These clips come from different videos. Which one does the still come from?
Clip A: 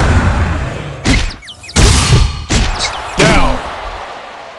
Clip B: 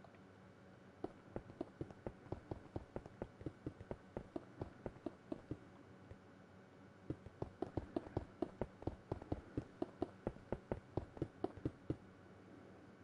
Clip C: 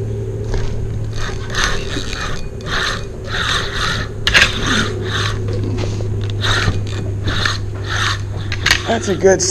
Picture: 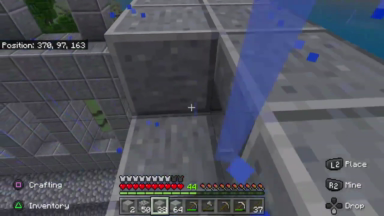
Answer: B